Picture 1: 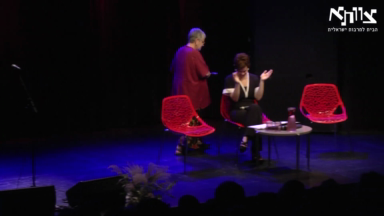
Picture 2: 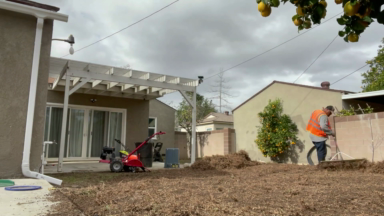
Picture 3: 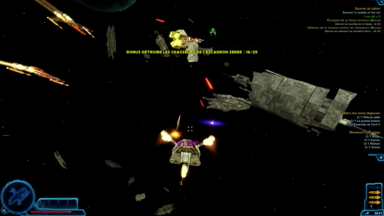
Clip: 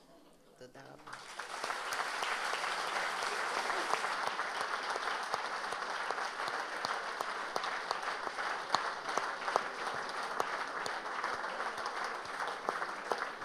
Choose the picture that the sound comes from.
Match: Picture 1